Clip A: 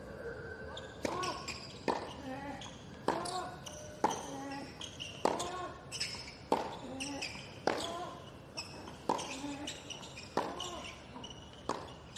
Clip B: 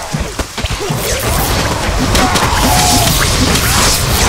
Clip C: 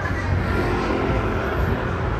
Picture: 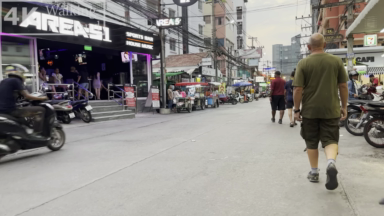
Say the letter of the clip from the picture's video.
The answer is C